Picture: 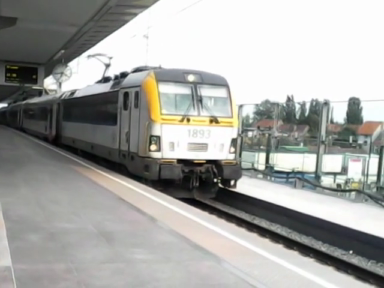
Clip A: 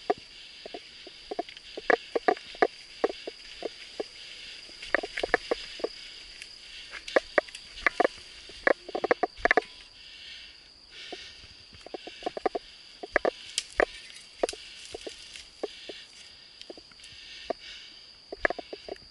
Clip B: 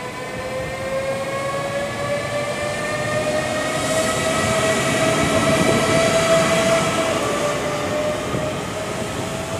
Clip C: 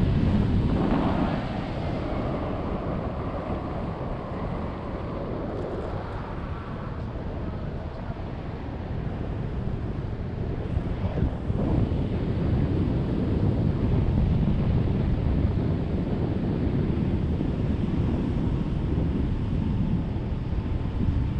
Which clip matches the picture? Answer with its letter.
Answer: B